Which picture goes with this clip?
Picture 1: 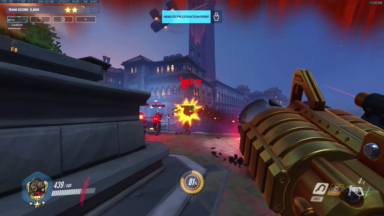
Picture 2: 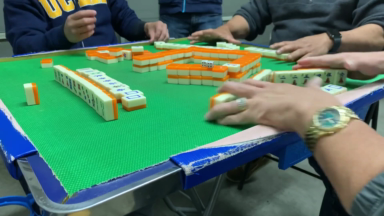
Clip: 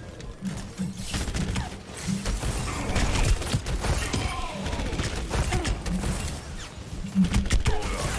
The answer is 1